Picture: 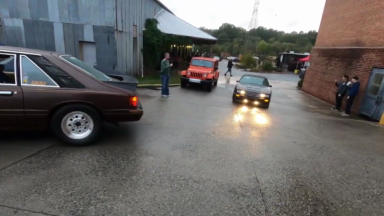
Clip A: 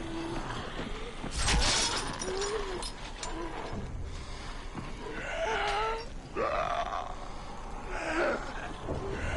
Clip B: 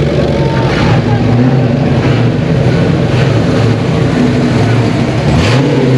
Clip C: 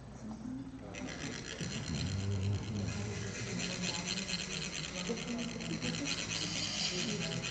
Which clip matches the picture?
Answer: B